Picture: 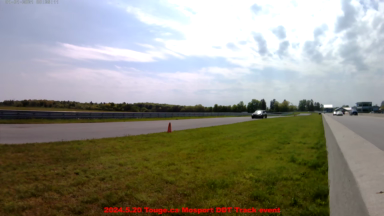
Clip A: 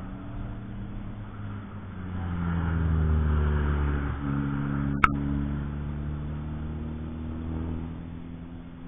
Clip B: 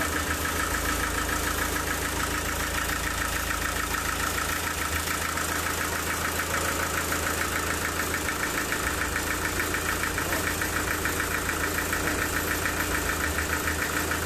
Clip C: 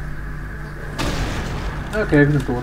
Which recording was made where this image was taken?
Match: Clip A